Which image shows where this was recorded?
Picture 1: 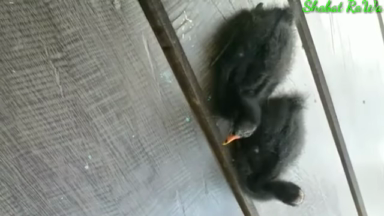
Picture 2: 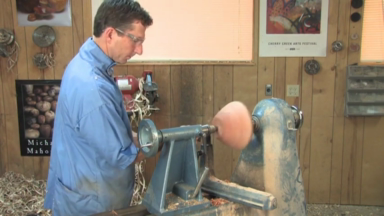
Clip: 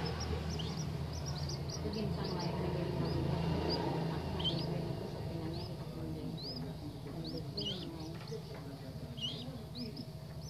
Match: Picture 1